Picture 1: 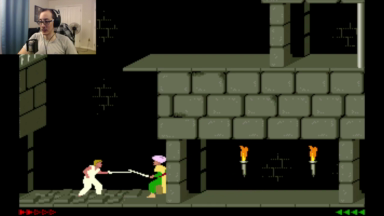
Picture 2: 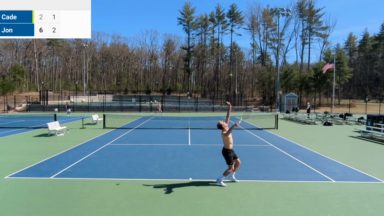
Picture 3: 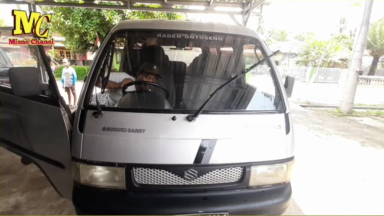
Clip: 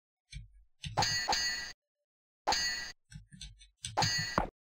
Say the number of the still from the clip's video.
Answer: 1